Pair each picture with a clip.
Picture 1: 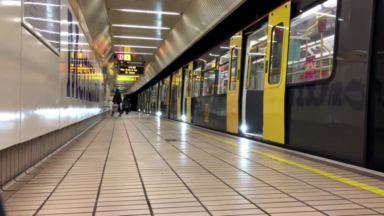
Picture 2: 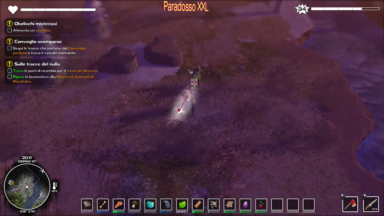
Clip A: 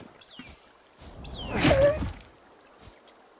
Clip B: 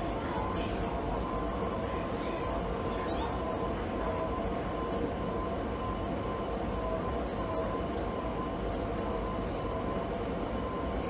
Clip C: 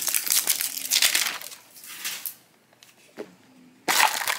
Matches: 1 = B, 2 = A